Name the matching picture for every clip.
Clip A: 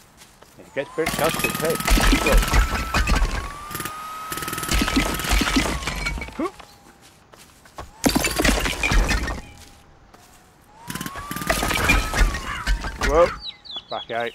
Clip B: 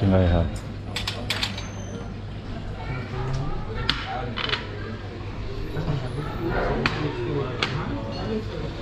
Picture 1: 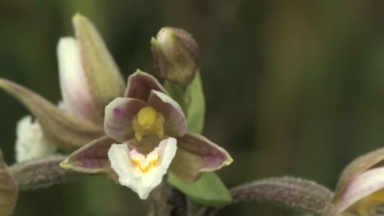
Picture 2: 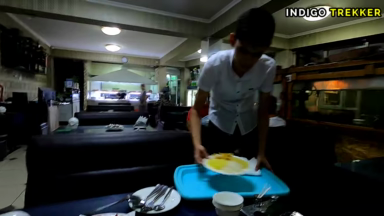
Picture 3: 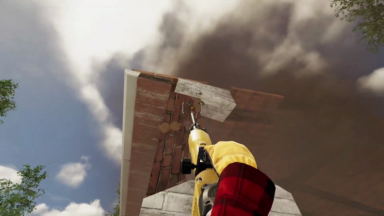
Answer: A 3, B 2